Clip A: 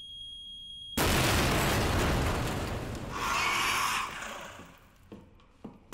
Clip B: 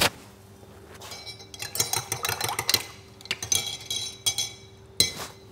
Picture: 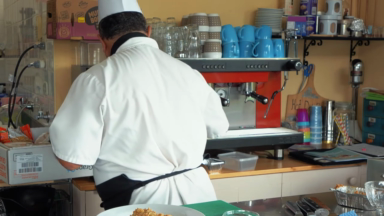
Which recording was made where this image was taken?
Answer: B